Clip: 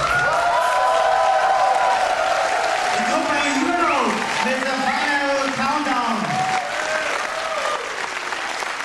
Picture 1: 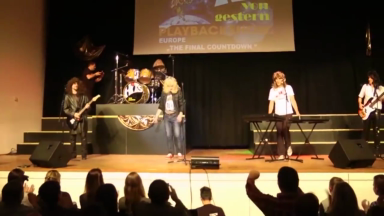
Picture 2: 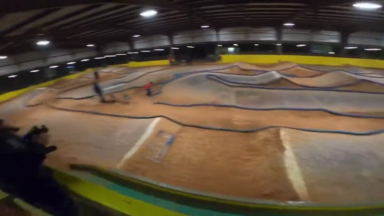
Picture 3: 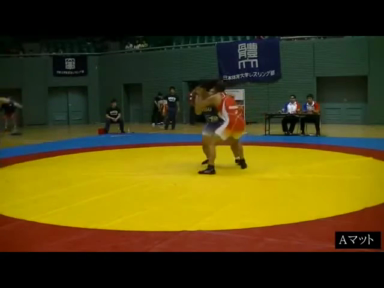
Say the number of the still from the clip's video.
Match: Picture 1